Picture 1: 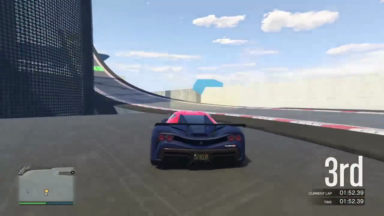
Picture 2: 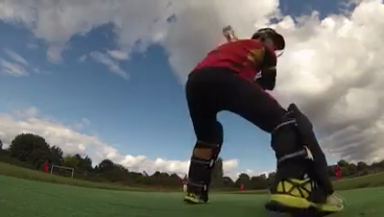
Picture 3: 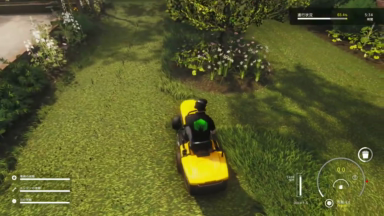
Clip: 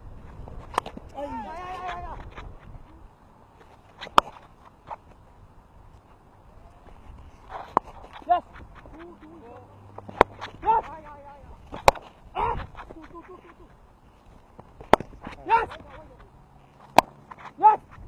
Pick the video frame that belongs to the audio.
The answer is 2